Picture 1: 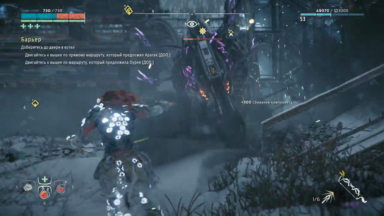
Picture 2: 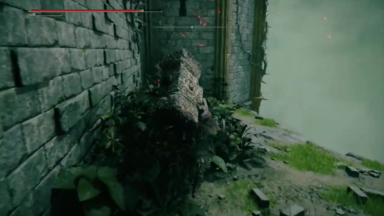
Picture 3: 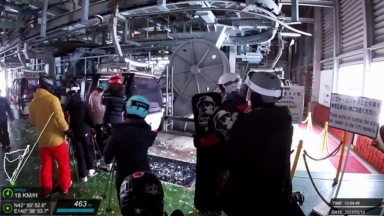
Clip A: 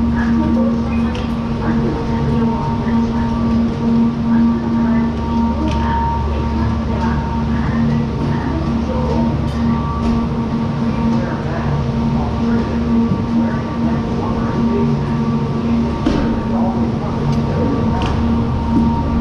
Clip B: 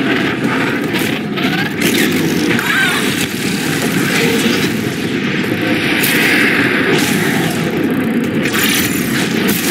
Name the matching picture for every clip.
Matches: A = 3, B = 1